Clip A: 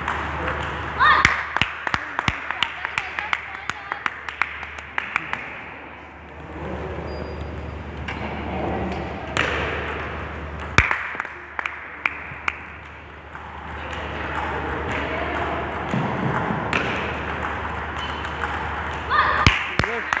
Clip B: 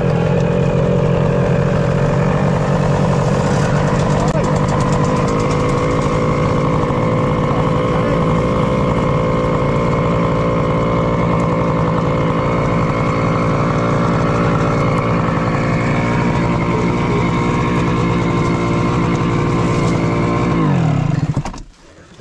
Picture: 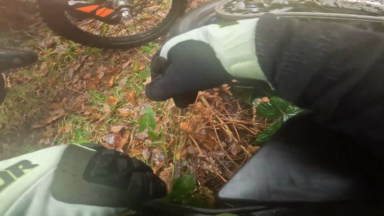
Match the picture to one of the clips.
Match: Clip B